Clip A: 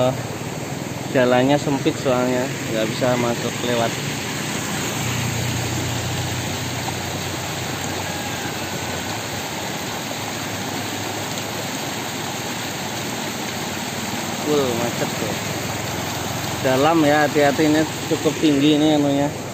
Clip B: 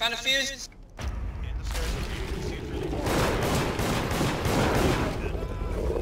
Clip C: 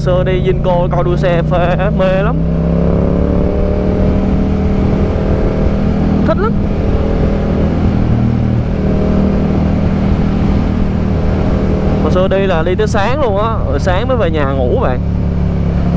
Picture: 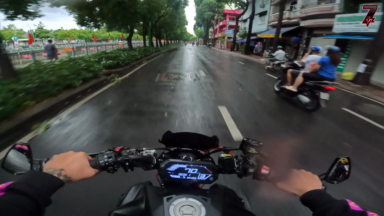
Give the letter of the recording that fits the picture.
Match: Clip C